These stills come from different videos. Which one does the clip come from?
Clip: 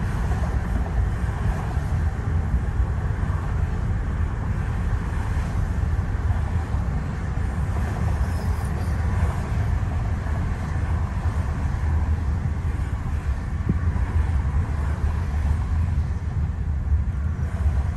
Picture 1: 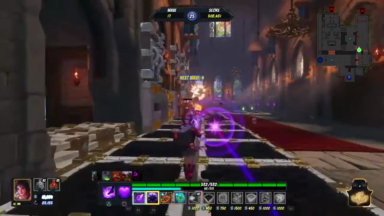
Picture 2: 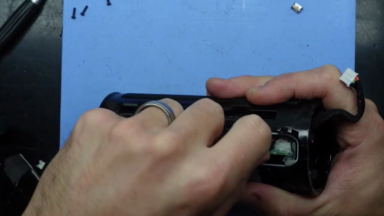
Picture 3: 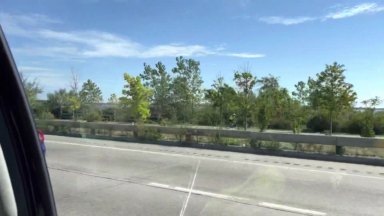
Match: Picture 3